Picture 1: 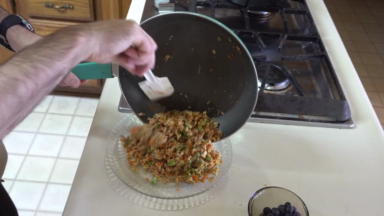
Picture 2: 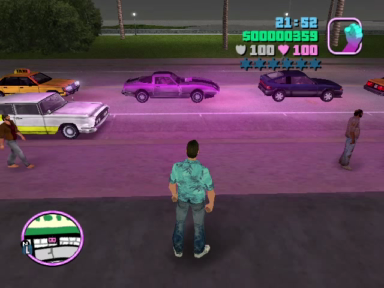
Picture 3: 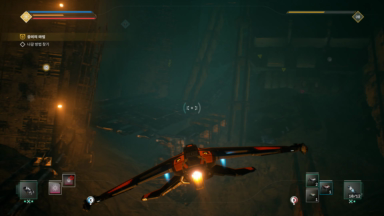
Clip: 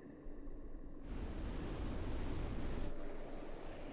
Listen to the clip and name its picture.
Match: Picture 3